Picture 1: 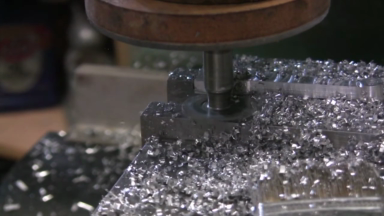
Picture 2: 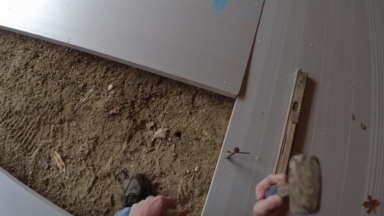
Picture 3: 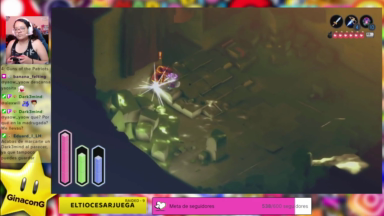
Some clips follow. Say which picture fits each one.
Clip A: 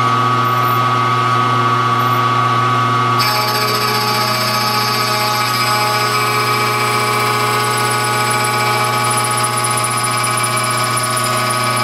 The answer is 1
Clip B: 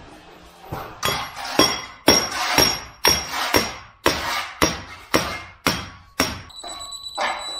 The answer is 2